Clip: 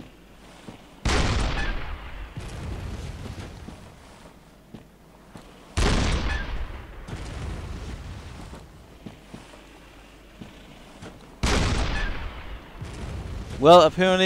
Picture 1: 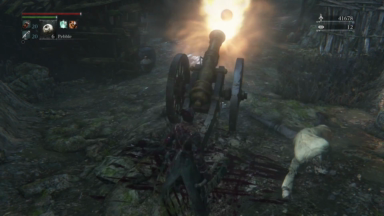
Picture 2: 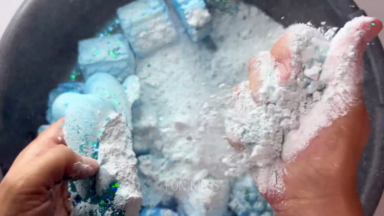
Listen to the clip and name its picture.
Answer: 1